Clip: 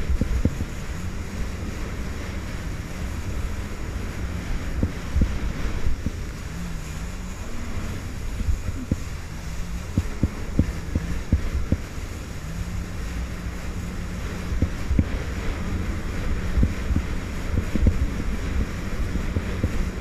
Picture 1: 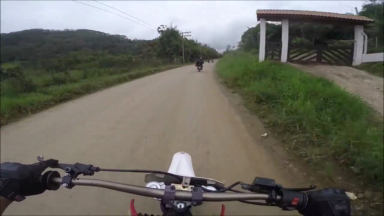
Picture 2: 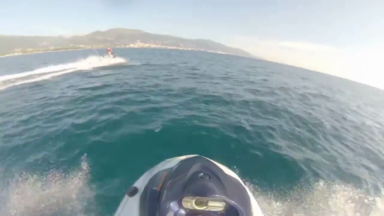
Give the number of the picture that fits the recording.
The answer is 2